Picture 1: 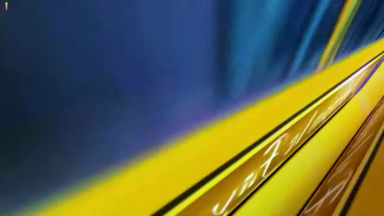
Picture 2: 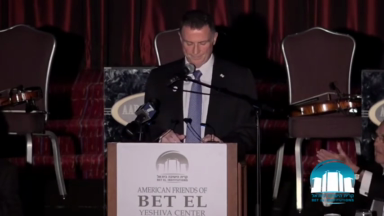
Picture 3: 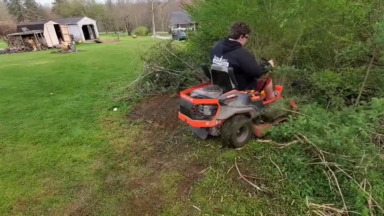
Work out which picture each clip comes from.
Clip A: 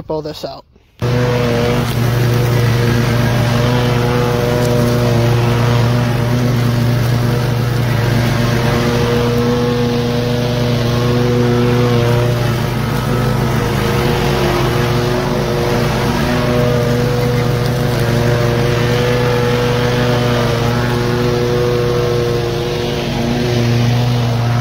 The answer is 3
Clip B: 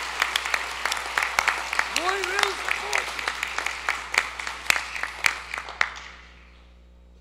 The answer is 2